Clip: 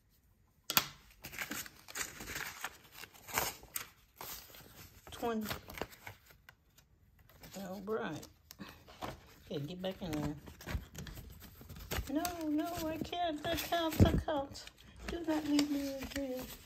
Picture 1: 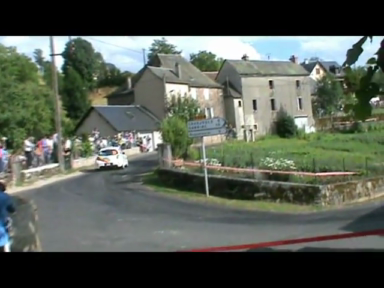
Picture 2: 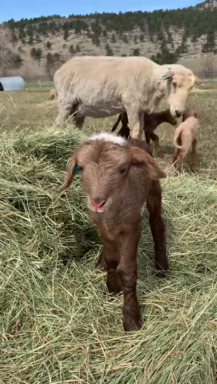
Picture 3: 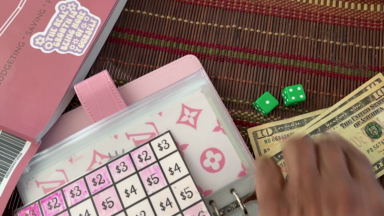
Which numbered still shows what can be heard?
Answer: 3